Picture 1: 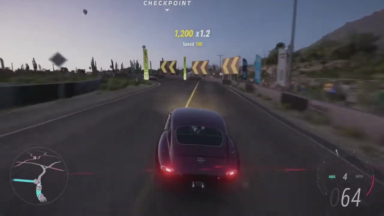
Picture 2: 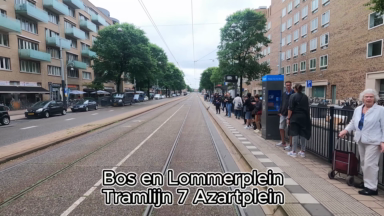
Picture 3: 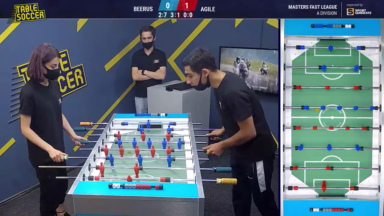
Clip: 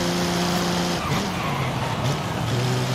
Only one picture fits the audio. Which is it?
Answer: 1